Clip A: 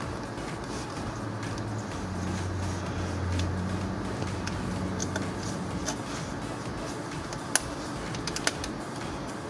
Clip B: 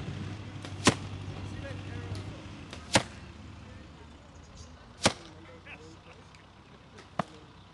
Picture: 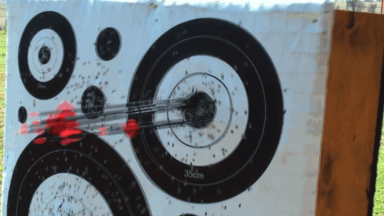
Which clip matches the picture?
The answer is B